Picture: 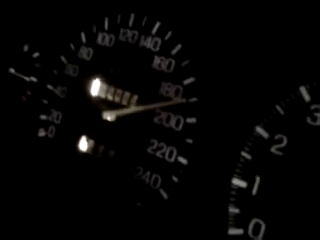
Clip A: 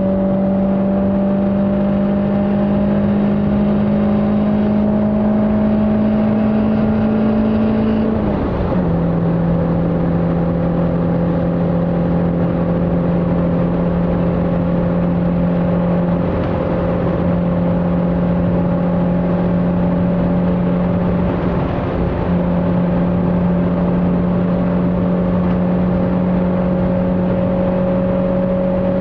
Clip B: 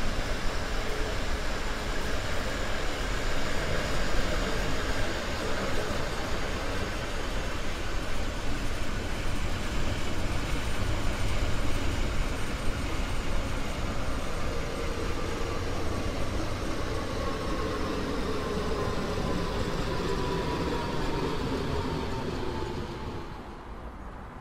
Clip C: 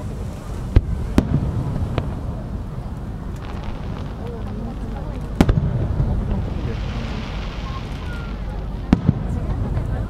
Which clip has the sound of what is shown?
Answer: A